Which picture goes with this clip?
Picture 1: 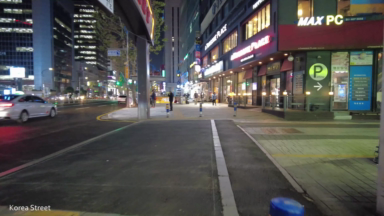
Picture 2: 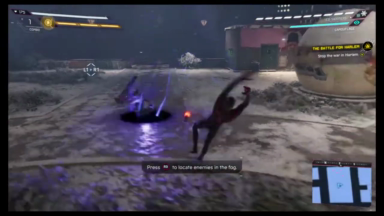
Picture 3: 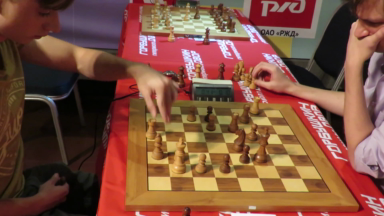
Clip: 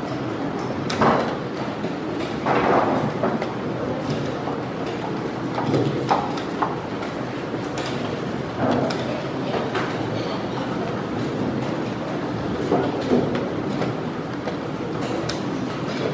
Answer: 3